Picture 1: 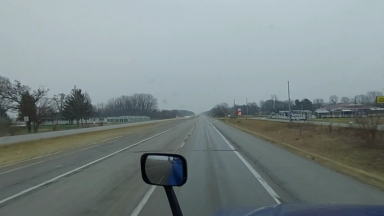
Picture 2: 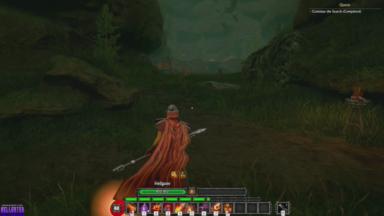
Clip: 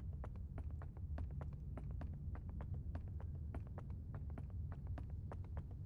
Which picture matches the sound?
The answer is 2